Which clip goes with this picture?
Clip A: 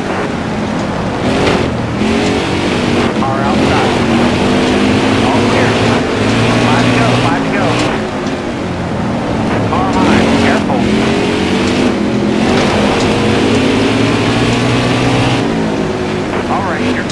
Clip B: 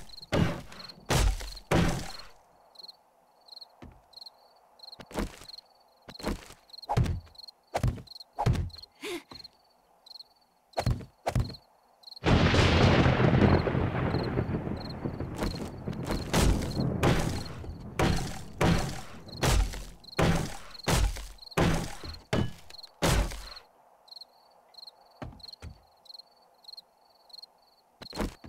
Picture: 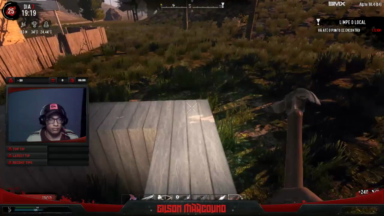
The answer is B